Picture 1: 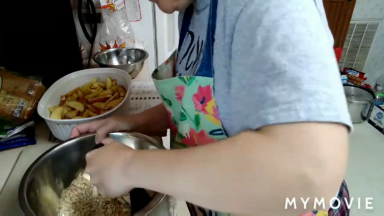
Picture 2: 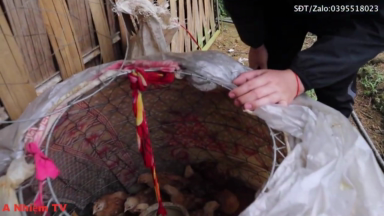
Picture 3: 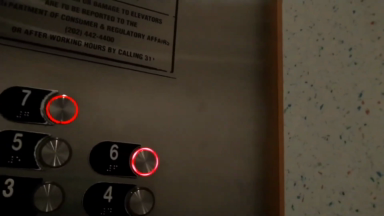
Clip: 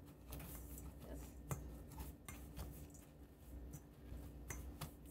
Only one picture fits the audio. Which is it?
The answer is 1